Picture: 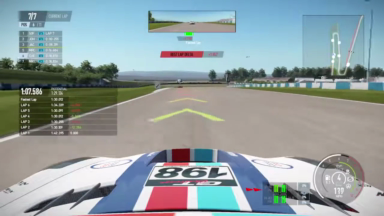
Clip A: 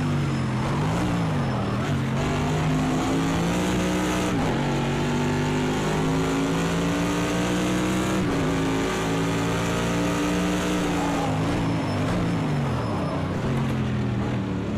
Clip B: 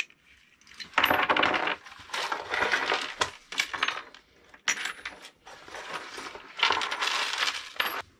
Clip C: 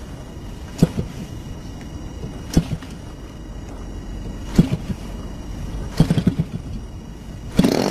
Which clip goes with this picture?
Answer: A